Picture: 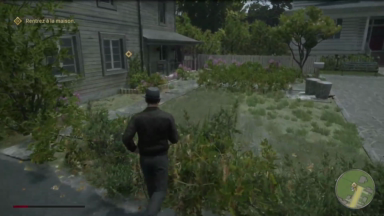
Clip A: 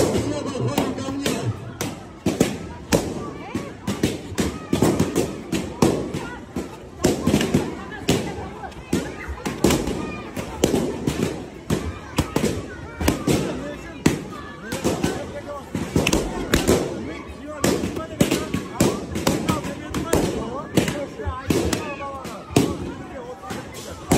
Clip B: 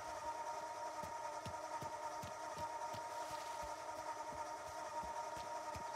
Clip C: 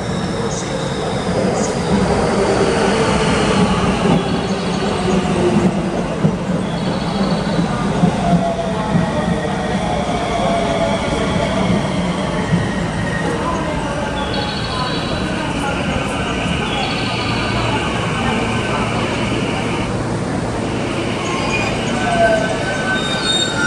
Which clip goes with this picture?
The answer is B